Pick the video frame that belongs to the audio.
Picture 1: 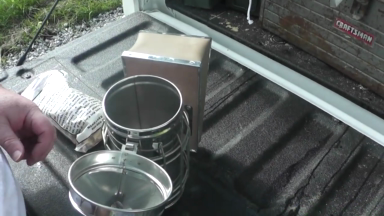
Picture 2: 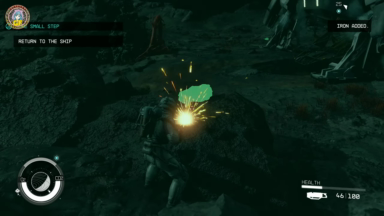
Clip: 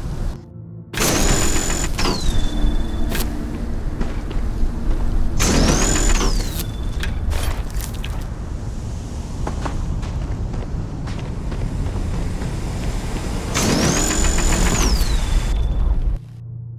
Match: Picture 2